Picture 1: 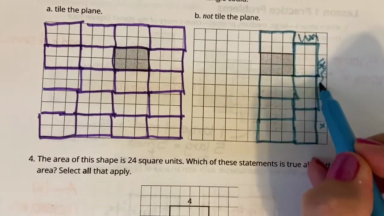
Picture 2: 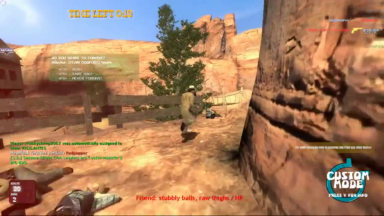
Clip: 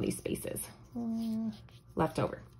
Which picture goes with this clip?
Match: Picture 1